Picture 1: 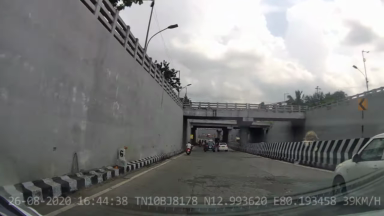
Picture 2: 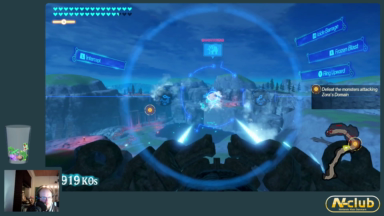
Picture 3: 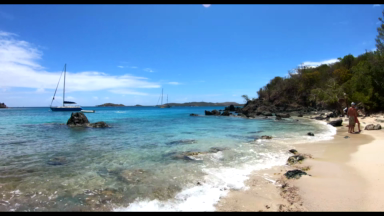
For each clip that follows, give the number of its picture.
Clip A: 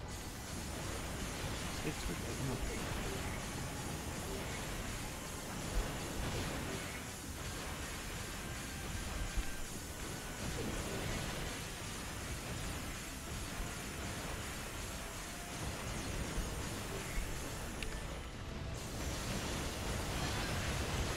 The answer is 2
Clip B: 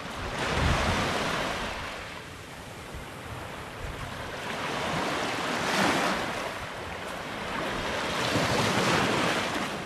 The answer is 3